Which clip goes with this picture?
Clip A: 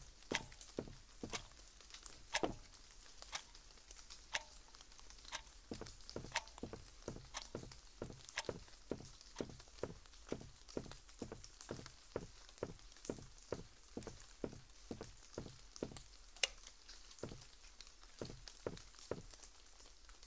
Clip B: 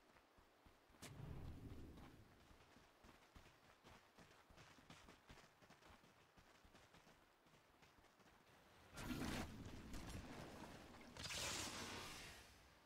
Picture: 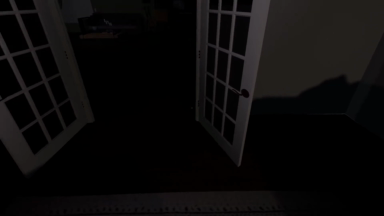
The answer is A